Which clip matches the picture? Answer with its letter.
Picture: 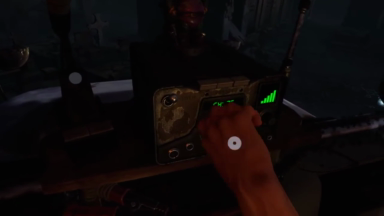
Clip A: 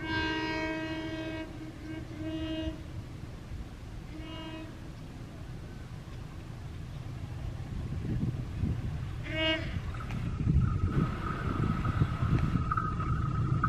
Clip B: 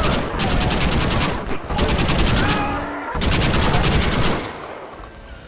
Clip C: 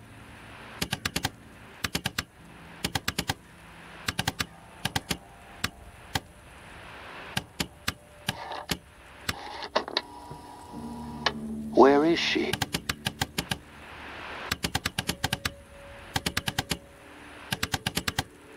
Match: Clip C